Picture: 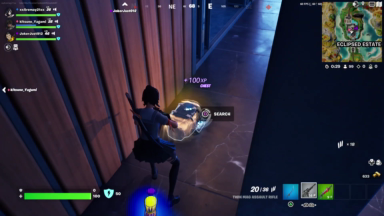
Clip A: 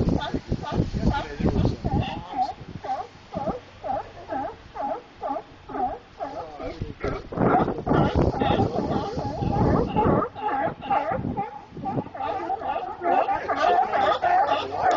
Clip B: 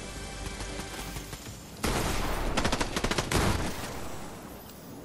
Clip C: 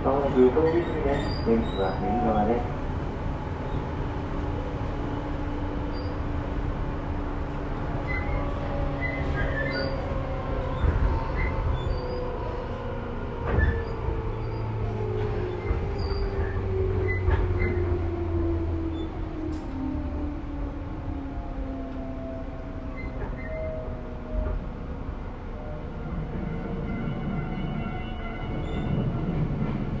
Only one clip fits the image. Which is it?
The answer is B